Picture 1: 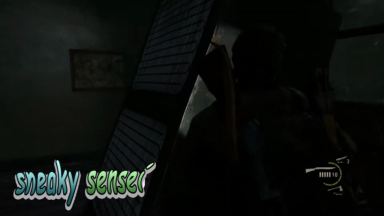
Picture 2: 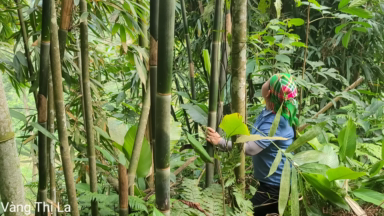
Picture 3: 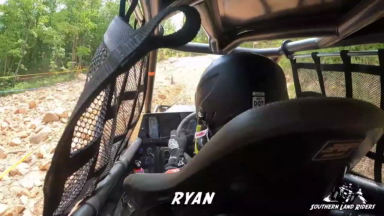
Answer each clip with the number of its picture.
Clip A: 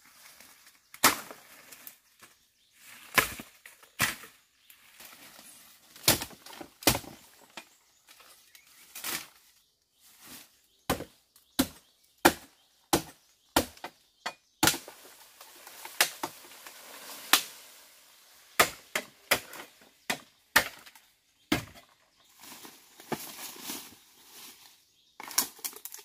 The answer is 2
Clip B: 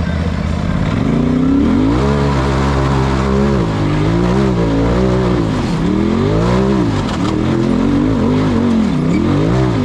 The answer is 3